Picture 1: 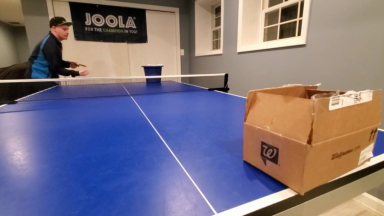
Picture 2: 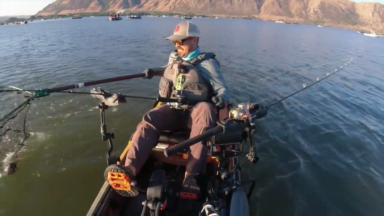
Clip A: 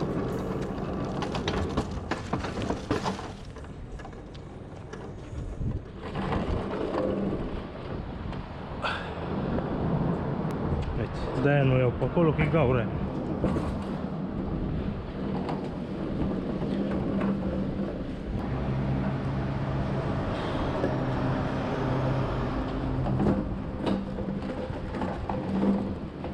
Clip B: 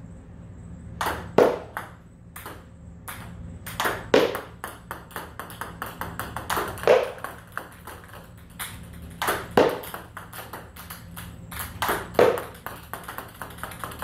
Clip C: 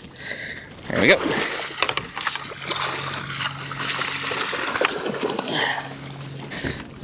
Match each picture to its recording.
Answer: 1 B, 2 C